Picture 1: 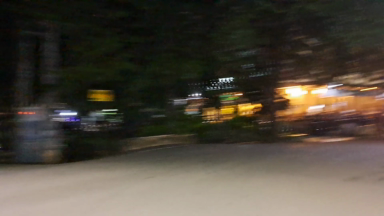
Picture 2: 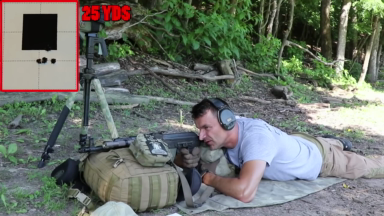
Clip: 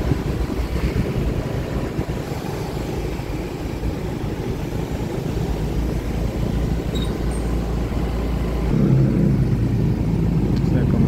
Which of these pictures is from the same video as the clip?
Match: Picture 1